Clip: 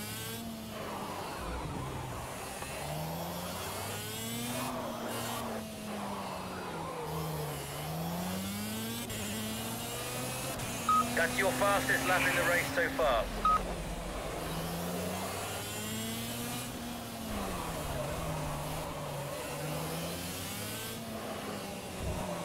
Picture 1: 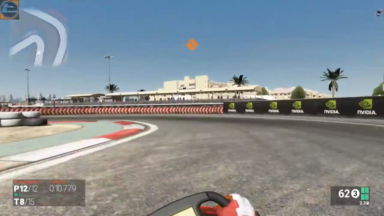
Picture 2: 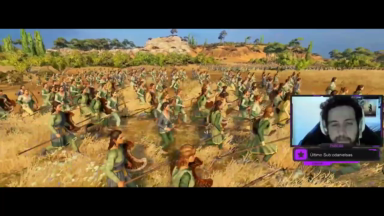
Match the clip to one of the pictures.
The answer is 1